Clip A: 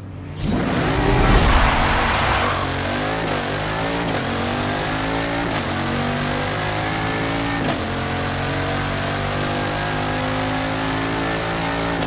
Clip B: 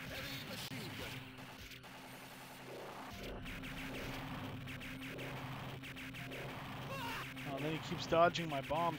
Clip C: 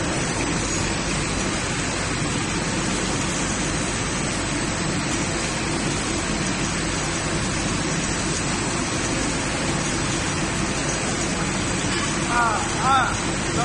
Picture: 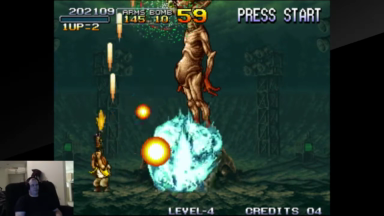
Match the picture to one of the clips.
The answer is B